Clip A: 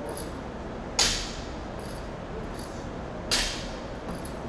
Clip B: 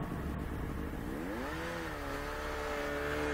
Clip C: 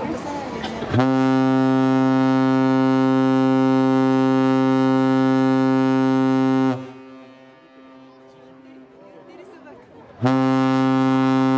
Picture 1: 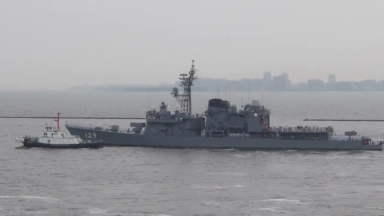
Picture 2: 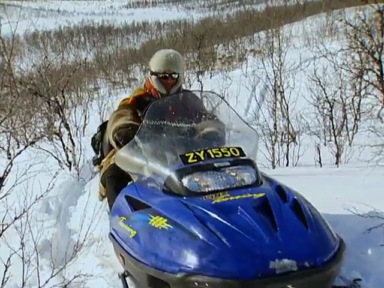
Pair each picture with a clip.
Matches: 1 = C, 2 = B